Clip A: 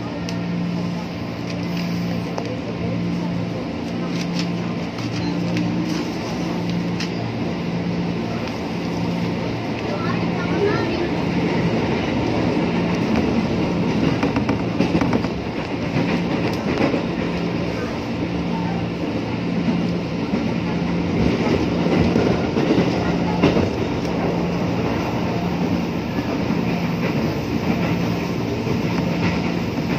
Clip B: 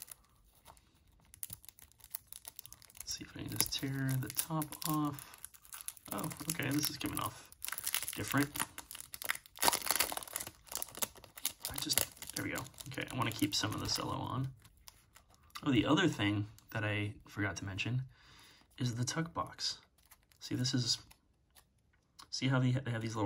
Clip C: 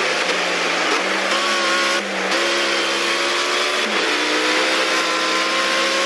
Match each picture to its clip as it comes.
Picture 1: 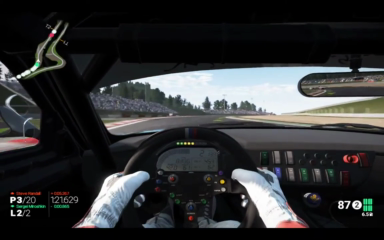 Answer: C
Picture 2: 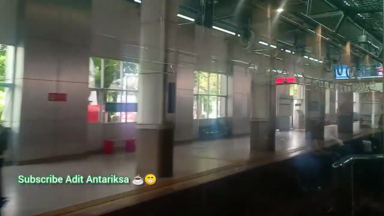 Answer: A